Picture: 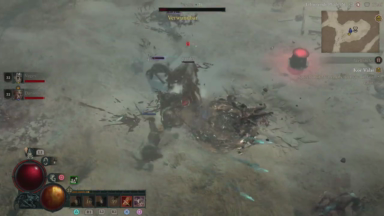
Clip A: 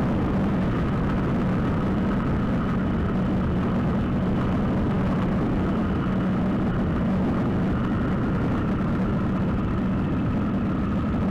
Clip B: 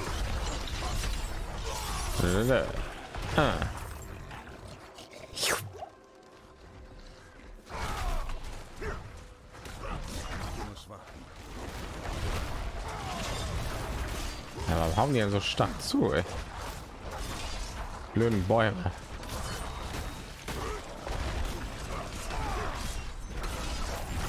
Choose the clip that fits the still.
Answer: B